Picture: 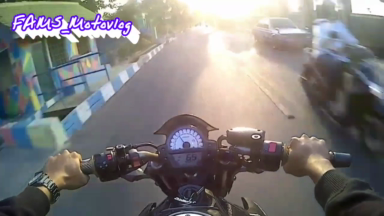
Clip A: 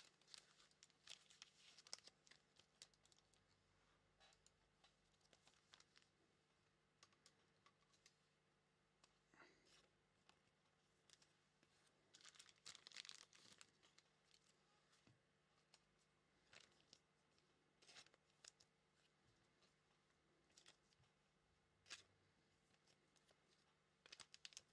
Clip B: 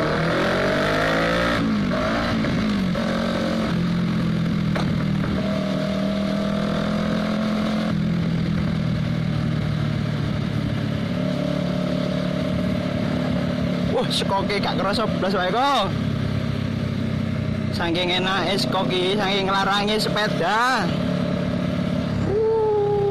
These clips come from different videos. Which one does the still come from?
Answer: B